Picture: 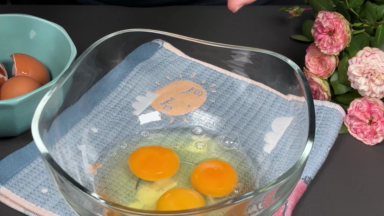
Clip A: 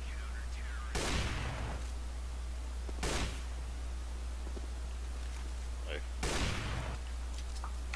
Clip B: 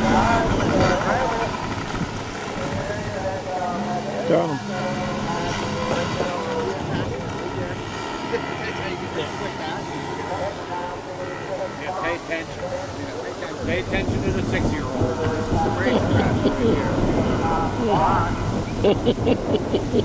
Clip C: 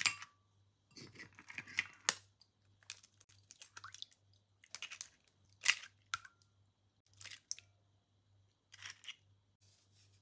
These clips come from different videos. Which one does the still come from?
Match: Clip C